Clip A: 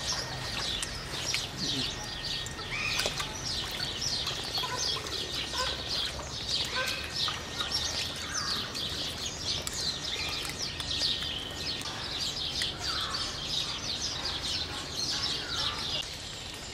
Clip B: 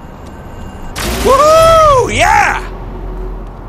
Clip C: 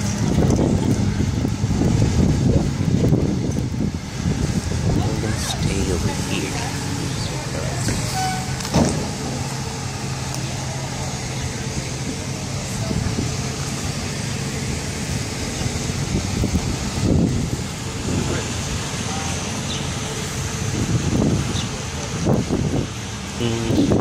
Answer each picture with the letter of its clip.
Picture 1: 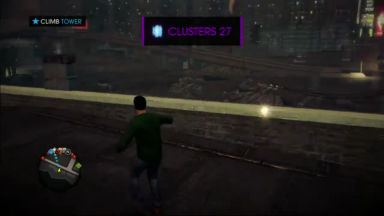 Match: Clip B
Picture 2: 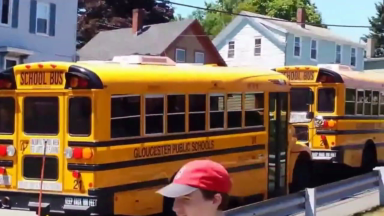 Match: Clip C